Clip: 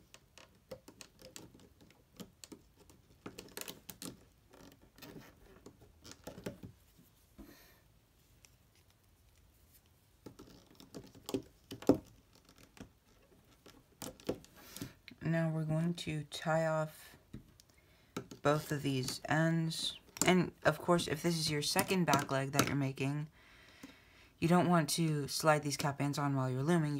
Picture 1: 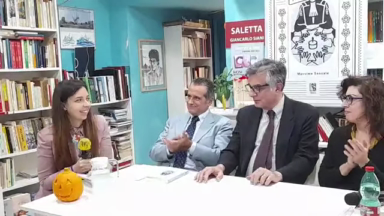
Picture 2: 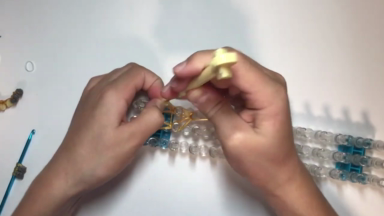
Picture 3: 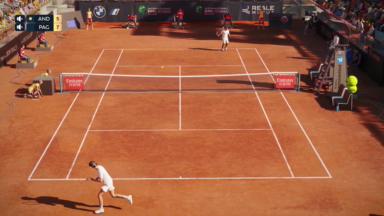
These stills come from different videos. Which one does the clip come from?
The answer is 2